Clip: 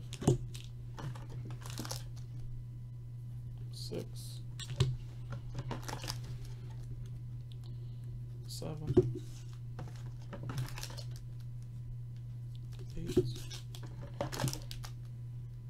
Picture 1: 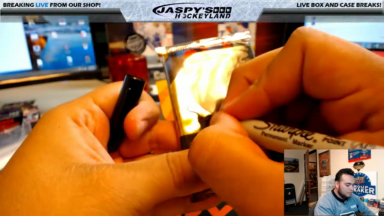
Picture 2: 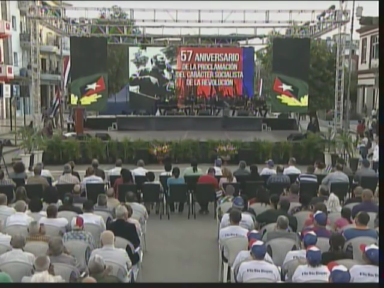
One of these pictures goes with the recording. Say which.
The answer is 1